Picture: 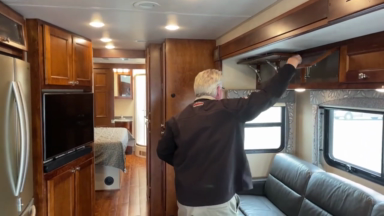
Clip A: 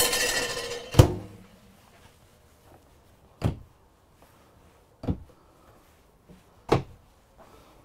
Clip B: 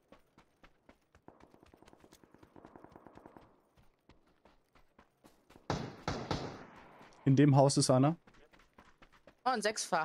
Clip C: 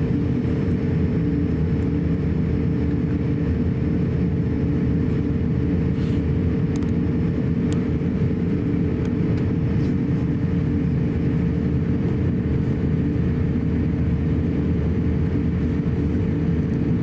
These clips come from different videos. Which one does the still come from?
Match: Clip A